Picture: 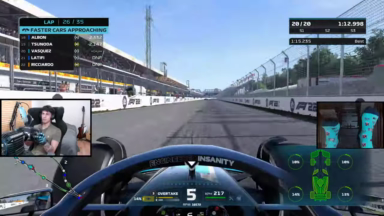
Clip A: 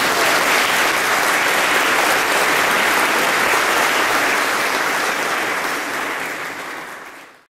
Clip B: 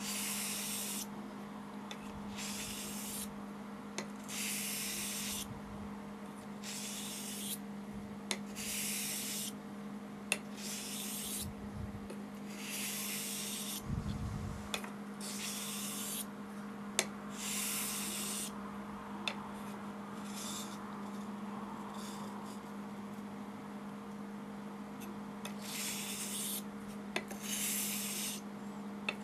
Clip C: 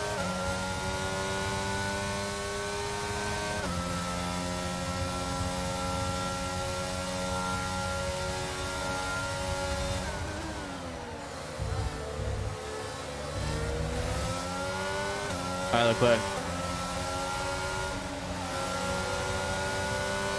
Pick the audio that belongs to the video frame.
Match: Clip C